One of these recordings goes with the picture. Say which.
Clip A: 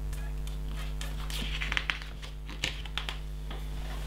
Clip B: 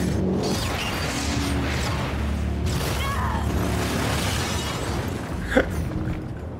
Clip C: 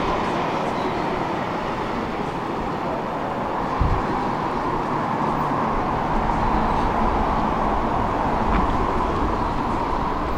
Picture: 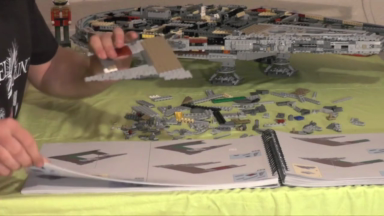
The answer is A